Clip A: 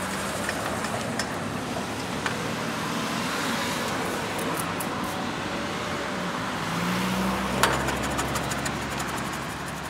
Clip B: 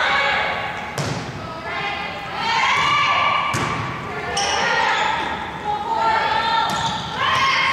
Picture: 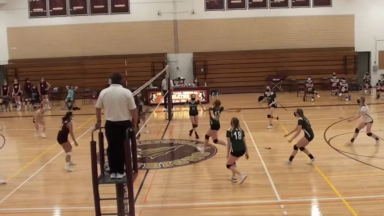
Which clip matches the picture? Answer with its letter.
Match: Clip B